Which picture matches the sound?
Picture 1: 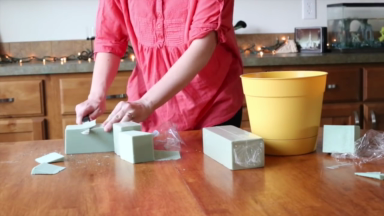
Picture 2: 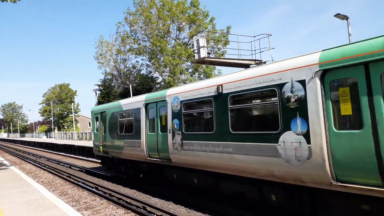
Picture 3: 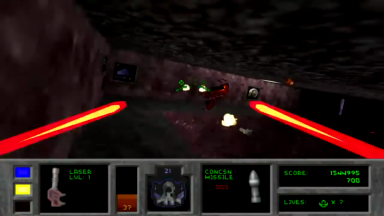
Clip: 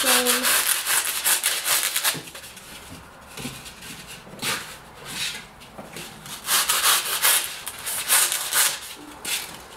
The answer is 1